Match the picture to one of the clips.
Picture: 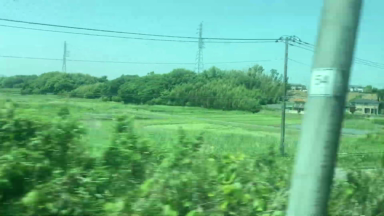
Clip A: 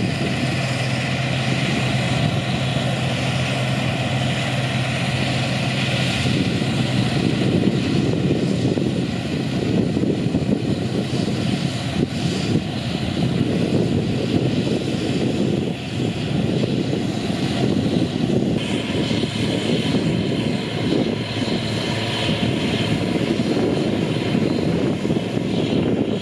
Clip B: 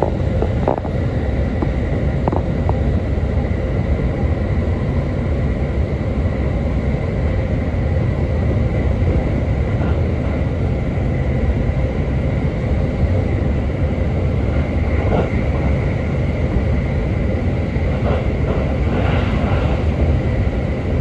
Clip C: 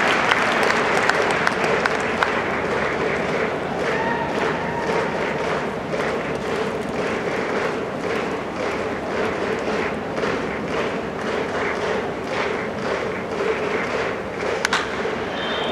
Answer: B